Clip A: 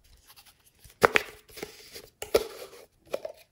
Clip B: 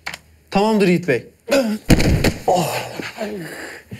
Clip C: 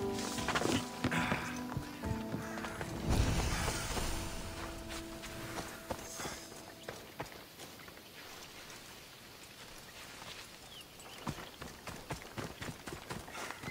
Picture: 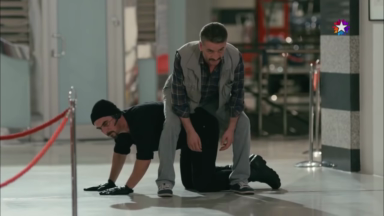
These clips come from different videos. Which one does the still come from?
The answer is B